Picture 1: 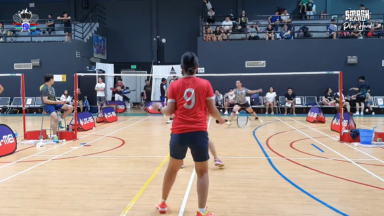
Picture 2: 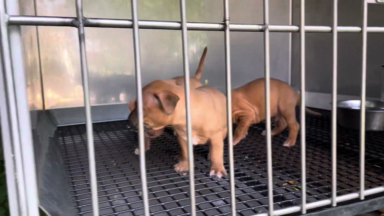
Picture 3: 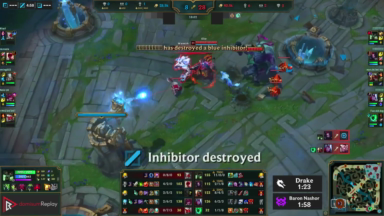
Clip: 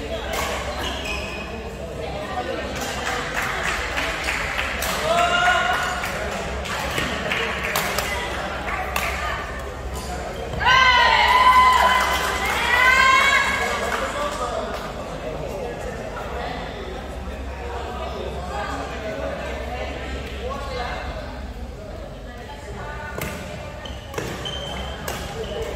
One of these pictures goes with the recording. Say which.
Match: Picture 1